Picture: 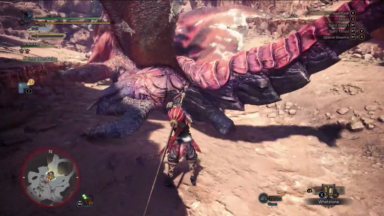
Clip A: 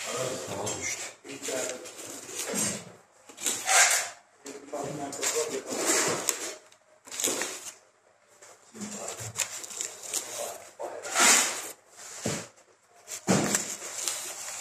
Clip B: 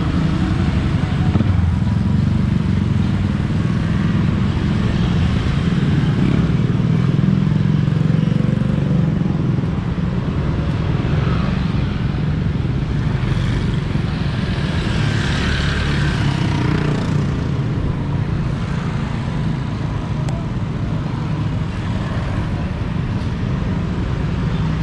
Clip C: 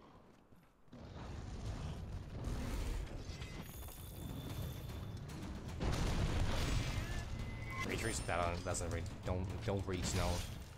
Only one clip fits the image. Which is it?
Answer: C